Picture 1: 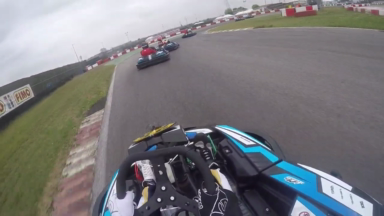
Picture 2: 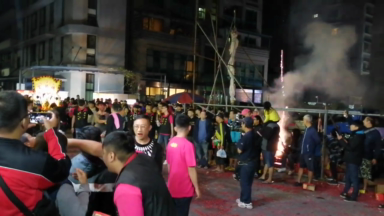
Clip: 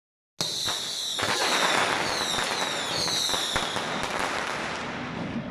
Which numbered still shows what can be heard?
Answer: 2